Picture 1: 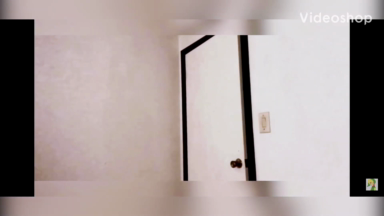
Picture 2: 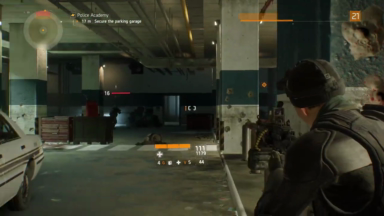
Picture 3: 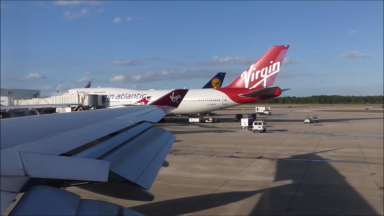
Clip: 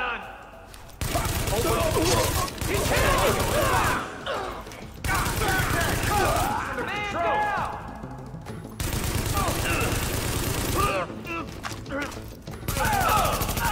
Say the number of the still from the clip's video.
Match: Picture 2